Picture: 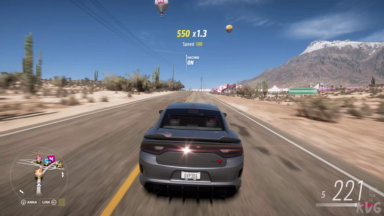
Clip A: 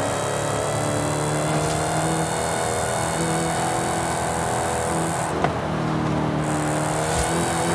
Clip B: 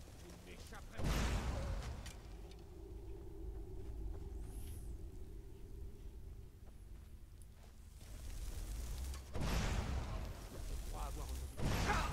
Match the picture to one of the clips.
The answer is A